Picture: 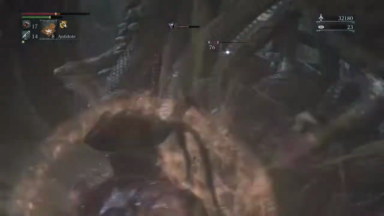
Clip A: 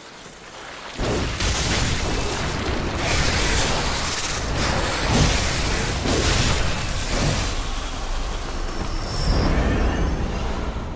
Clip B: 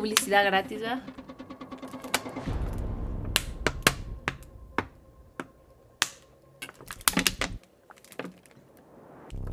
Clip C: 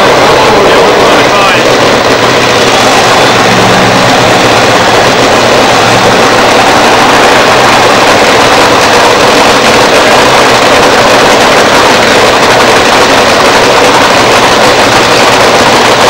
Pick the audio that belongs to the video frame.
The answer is A